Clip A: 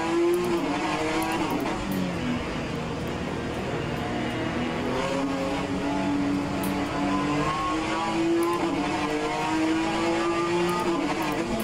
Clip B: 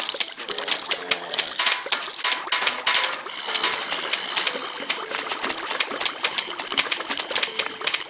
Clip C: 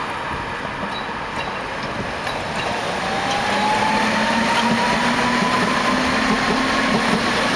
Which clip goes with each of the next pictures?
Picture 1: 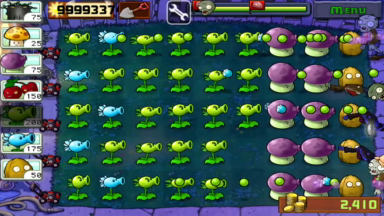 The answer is B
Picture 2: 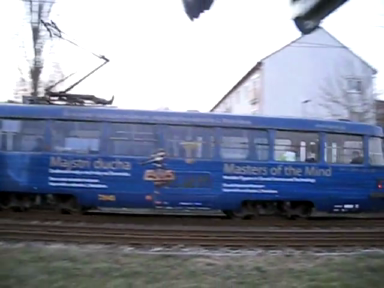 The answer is C